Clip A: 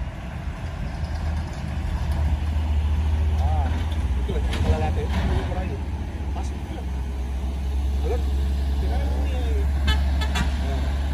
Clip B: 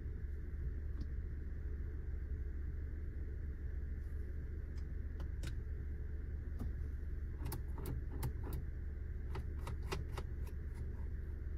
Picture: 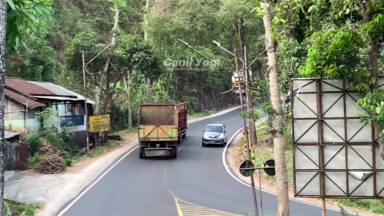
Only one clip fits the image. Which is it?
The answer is A